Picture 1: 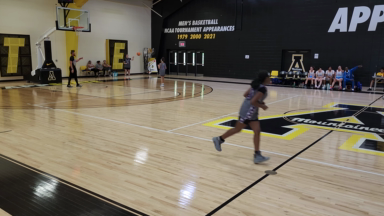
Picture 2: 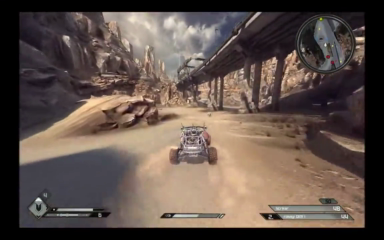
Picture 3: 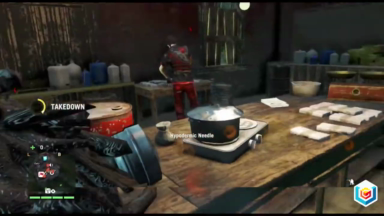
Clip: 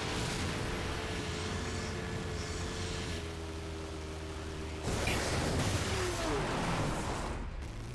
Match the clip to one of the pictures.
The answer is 2